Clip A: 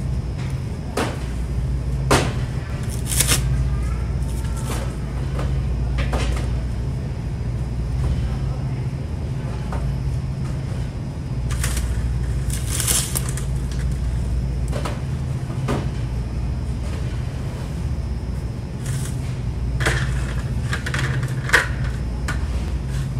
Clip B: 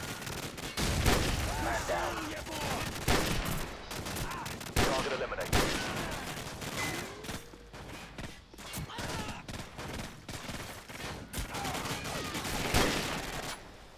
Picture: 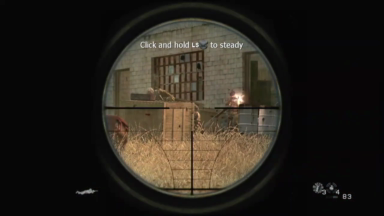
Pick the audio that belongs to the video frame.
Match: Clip B